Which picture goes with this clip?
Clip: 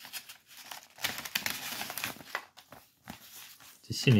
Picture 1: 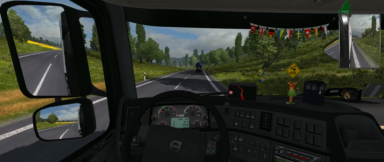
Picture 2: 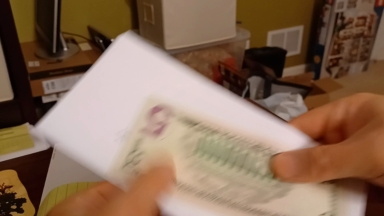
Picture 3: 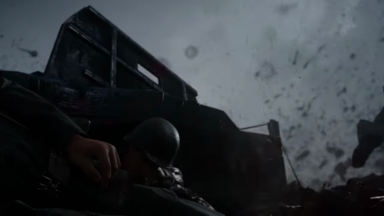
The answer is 2